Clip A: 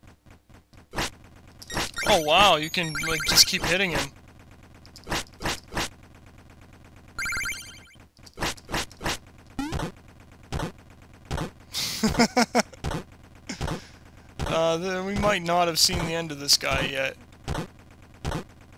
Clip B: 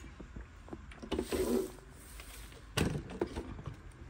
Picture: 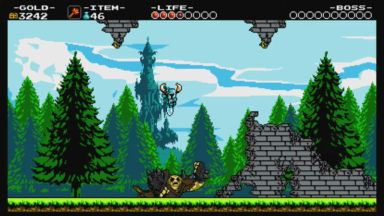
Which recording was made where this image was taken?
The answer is A